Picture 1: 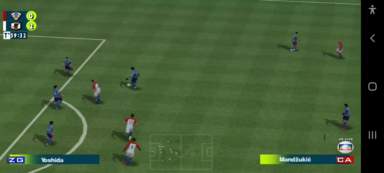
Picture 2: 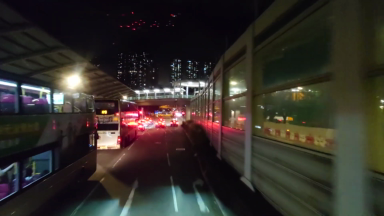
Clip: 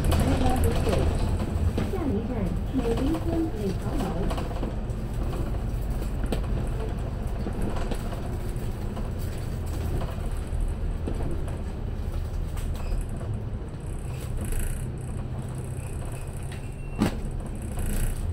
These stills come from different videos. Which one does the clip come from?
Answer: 2